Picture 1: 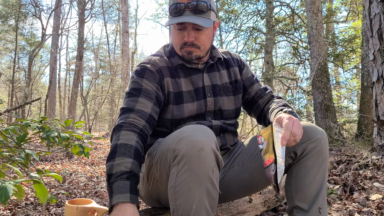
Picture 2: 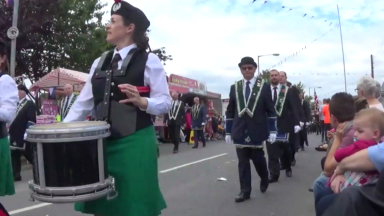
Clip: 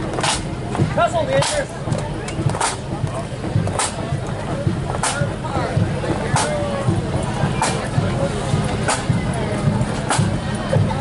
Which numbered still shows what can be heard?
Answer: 2